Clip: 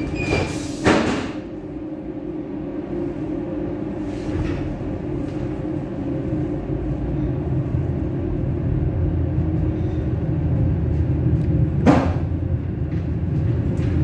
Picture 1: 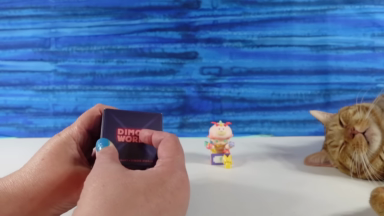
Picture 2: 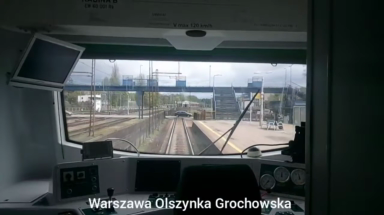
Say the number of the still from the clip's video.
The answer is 2